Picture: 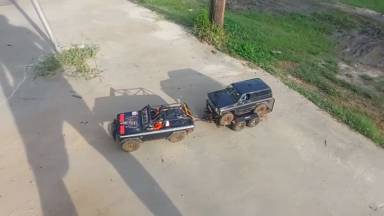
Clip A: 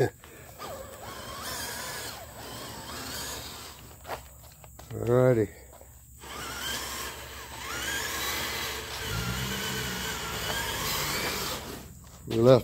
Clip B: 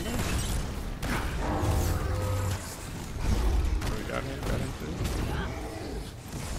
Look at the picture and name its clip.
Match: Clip A